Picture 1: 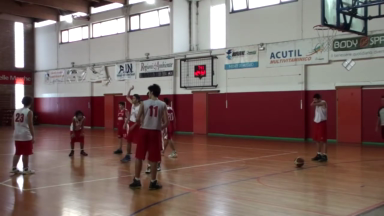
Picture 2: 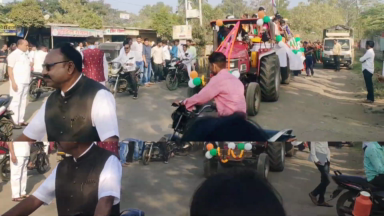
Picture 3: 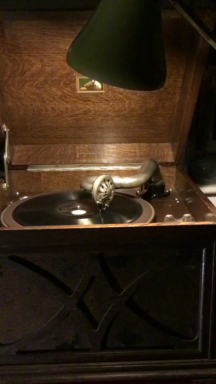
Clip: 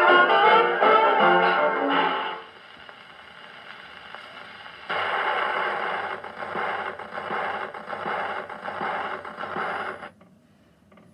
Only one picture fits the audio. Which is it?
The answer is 3